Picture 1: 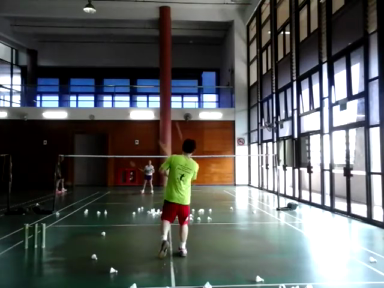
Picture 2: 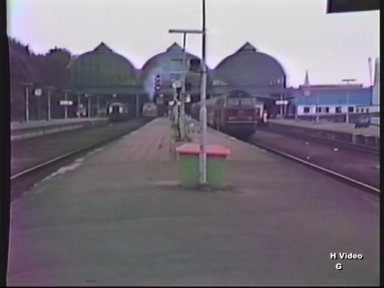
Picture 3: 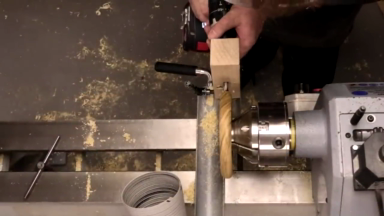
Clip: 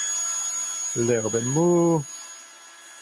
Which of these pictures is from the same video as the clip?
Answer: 3